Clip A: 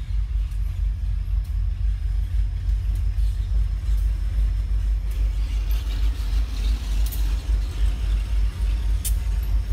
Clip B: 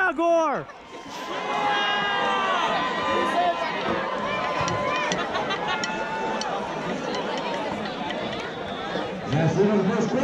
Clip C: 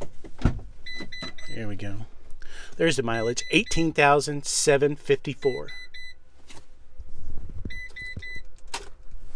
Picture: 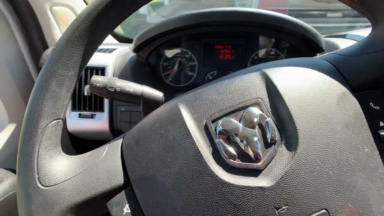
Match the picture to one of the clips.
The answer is C